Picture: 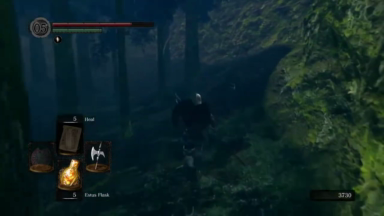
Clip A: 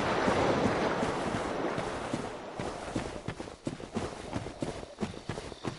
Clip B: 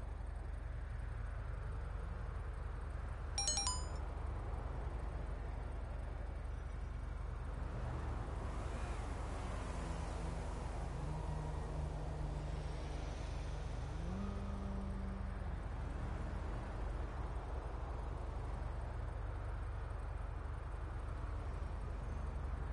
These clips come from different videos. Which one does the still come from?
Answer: A